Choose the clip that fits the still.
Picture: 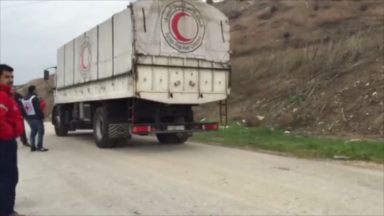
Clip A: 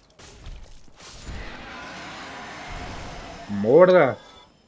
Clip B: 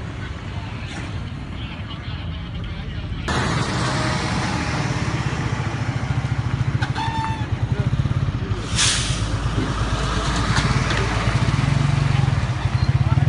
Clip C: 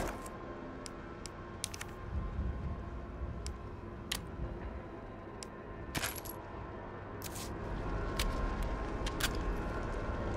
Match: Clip B